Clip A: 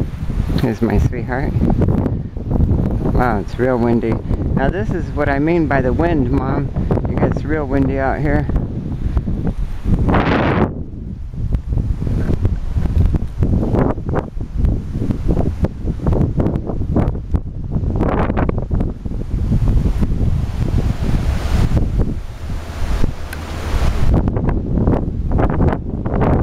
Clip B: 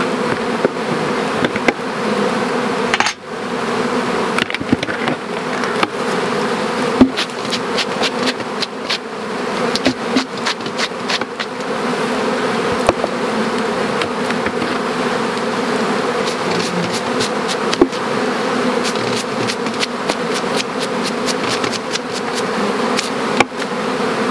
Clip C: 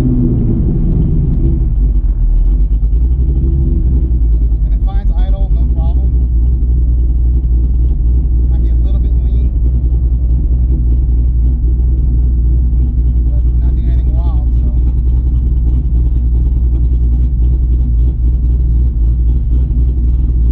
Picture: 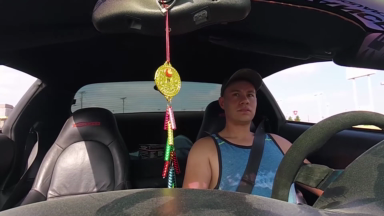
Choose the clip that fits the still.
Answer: C